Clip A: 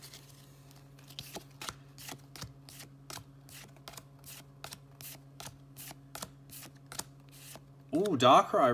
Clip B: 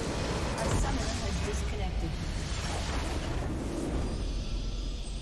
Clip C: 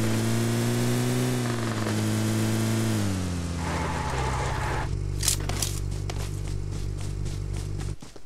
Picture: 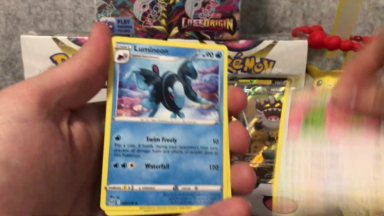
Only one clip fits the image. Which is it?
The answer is A